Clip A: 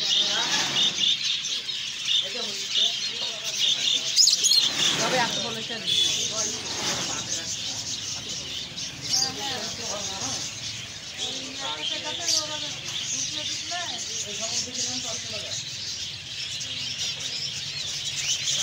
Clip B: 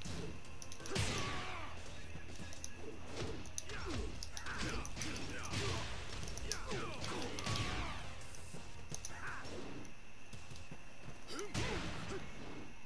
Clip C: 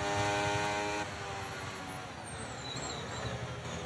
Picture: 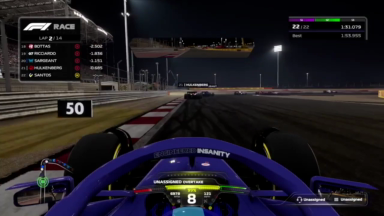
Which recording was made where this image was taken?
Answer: C